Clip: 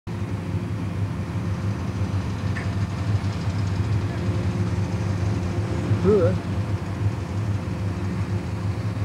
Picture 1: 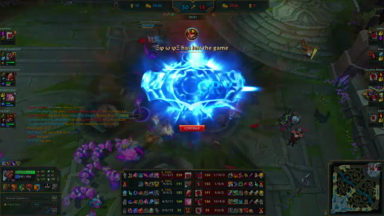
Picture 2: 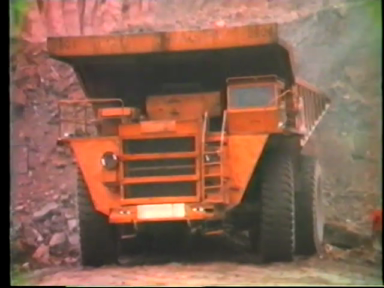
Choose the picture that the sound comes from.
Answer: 2